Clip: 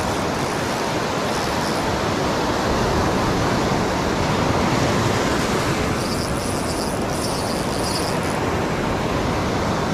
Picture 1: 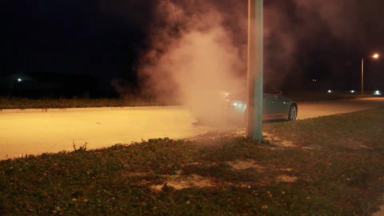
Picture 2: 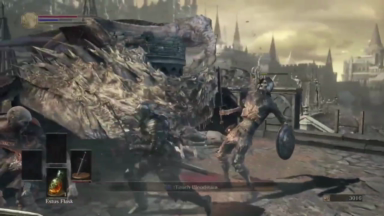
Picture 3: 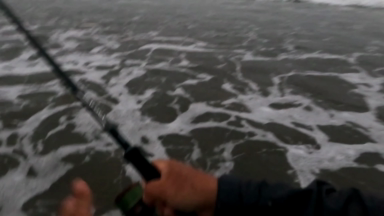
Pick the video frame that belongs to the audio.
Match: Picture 3